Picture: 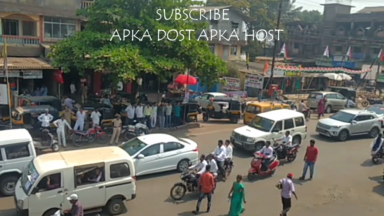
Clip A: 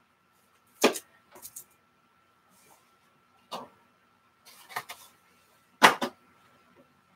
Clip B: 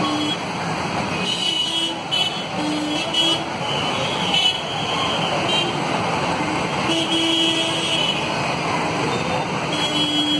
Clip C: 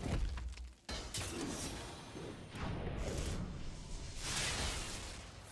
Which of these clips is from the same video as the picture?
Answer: B